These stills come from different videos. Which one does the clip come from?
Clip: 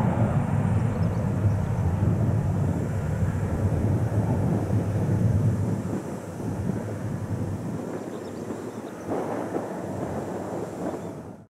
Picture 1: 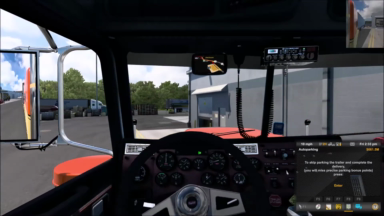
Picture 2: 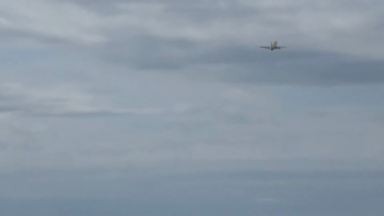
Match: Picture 2